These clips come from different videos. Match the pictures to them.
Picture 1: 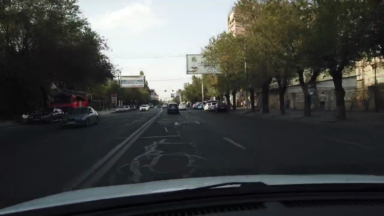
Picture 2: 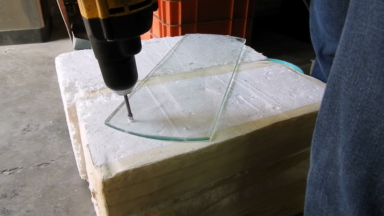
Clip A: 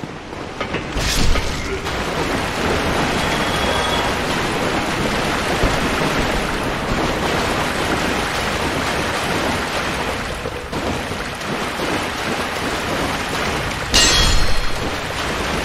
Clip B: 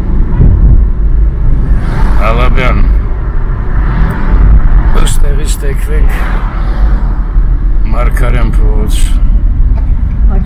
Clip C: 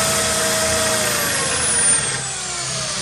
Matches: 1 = B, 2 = C